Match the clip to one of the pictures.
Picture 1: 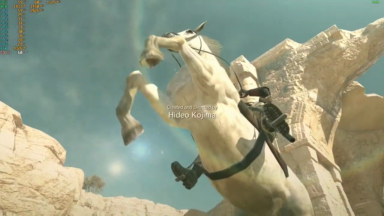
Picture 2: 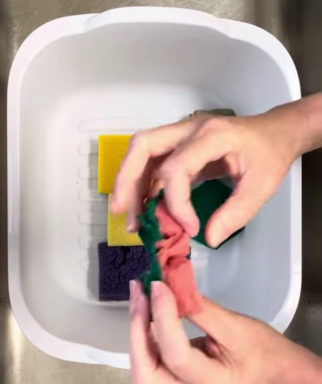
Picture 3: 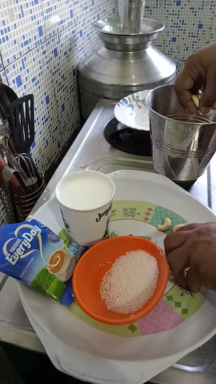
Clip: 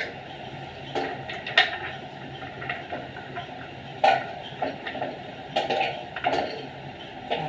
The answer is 3